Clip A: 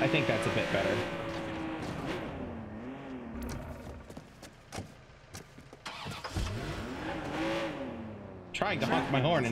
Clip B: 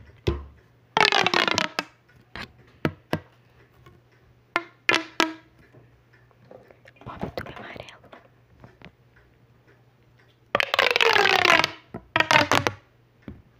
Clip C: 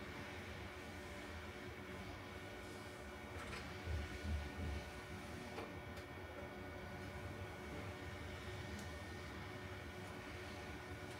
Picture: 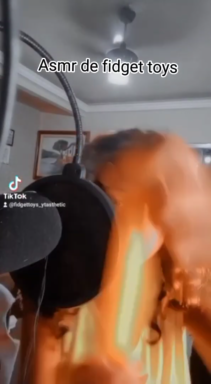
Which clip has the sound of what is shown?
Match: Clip B